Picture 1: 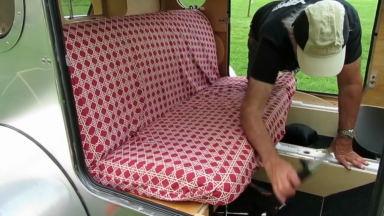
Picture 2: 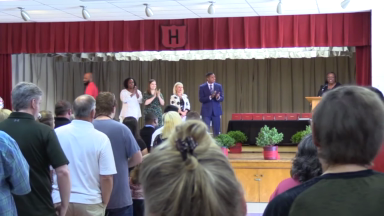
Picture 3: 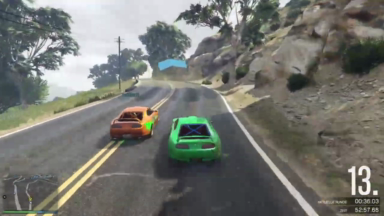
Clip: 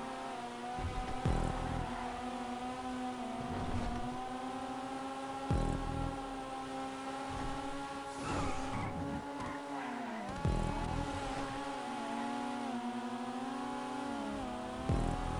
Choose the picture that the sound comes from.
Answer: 3